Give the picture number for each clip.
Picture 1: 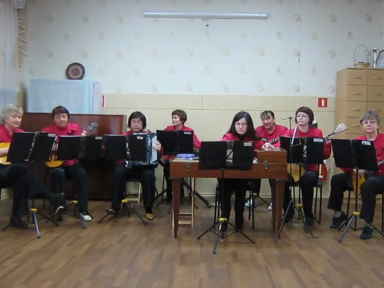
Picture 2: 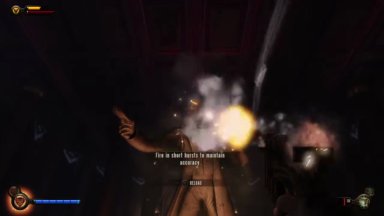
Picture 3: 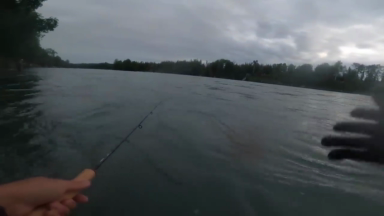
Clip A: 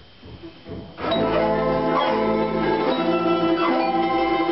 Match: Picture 1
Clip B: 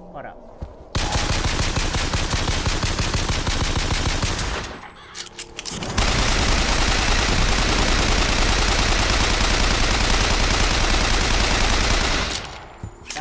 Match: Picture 2